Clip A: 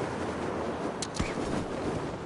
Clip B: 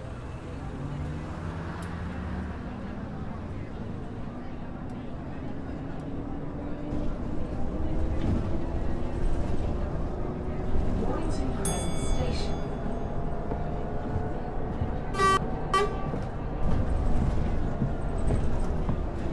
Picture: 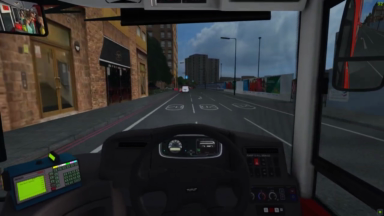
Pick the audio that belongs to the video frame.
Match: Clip B